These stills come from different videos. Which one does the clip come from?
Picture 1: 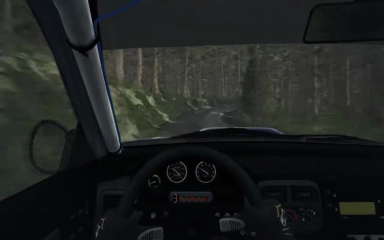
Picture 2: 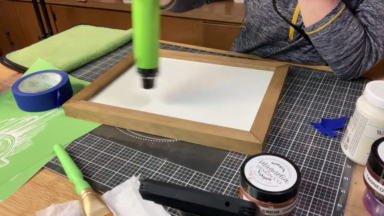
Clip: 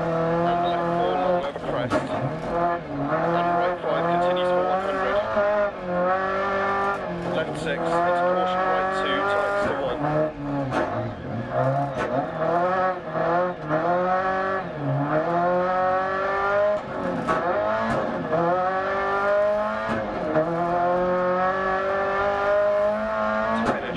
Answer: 1